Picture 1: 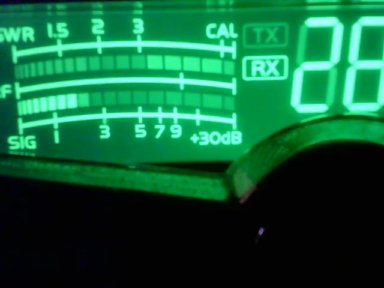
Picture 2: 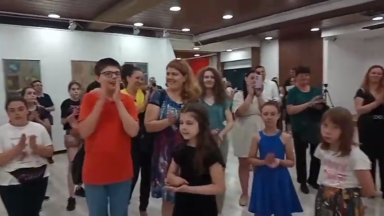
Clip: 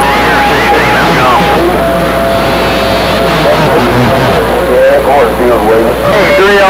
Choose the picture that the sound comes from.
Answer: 1